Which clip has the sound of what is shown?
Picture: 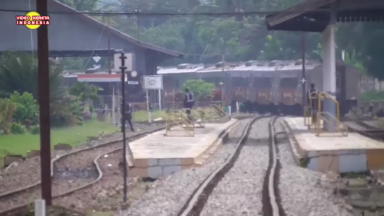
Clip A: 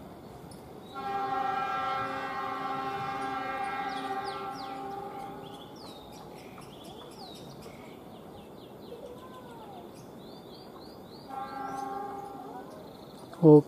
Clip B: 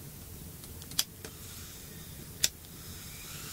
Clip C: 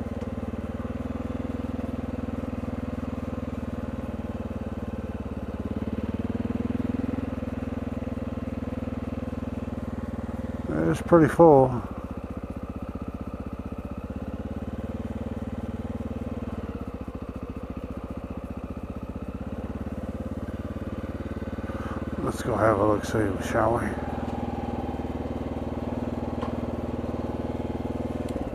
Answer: A